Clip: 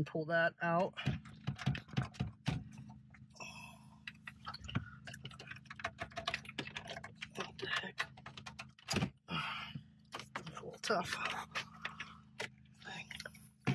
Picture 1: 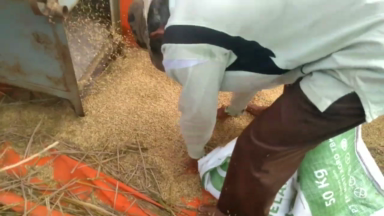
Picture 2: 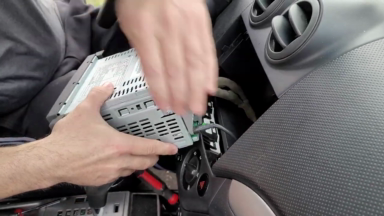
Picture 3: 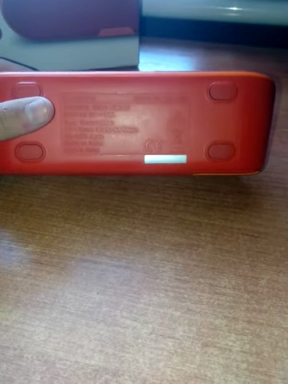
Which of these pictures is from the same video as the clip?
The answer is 2